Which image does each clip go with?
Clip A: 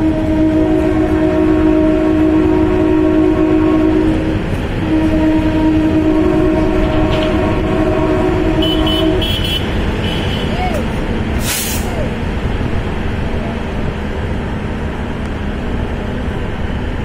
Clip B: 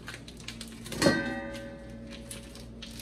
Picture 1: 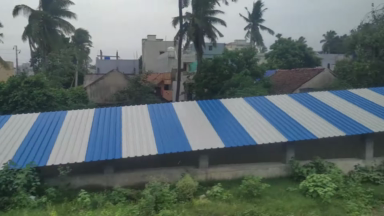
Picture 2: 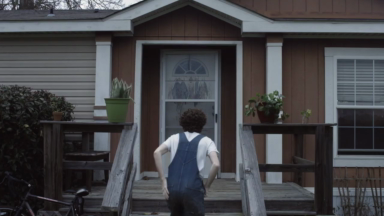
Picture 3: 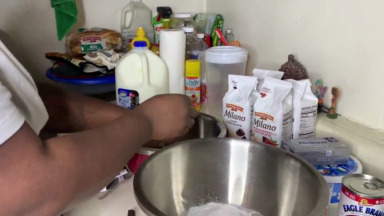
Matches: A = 1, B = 3